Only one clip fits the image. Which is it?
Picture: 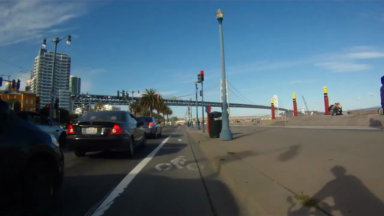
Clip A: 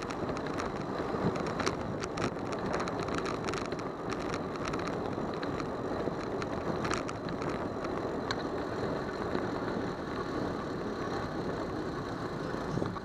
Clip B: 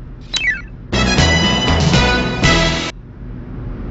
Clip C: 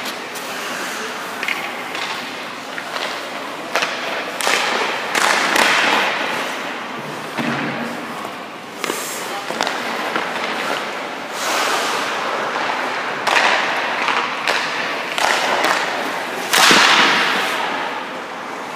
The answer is A